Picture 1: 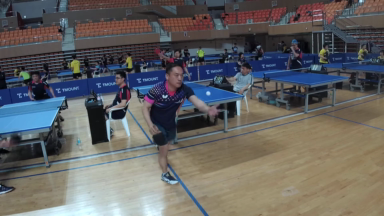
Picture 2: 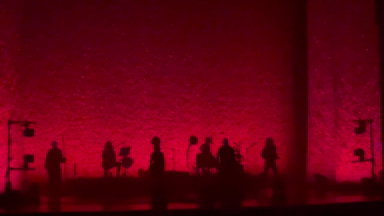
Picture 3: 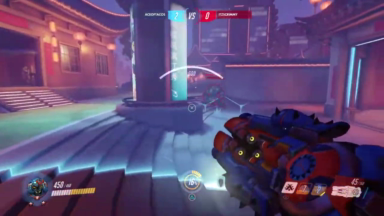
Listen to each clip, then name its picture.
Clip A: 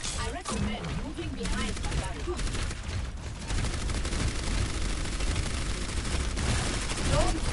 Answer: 3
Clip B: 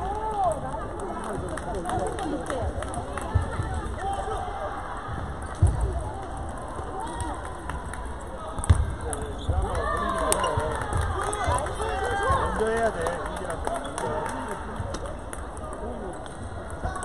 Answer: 1